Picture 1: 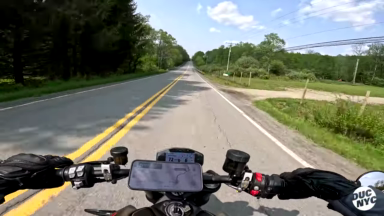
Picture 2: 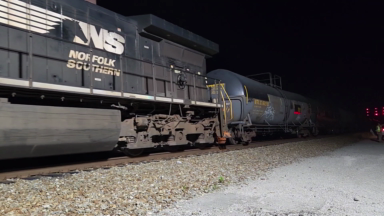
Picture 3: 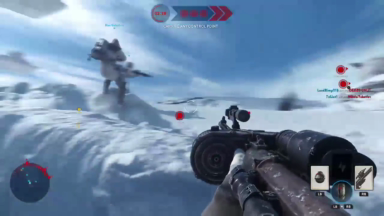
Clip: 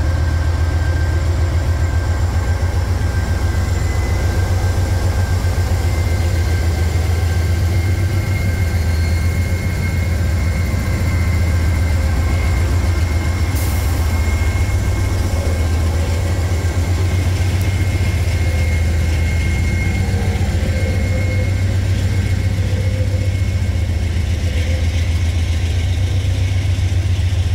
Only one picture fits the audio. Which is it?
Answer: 2